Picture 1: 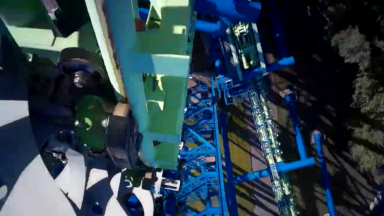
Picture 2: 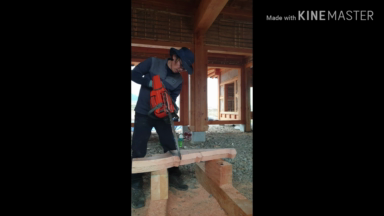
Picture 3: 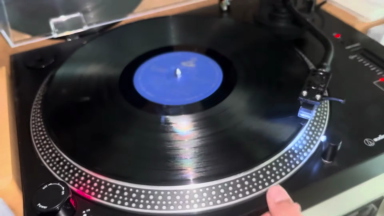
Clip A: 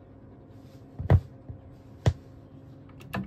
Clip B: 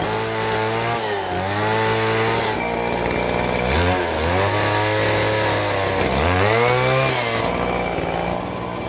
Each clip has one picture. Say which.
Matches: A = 3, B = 2